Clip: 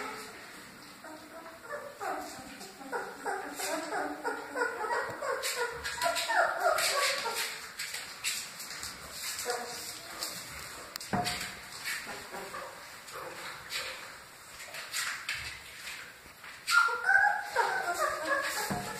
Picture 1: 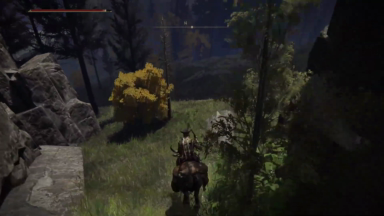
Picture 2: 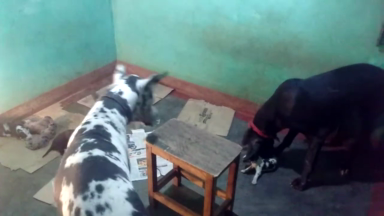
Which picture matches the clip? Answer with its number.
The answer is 2